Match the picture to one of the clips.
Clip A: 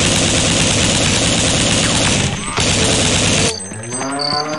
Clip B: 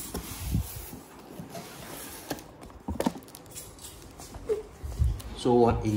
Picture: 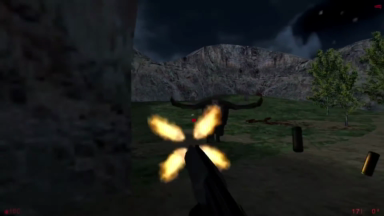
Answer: A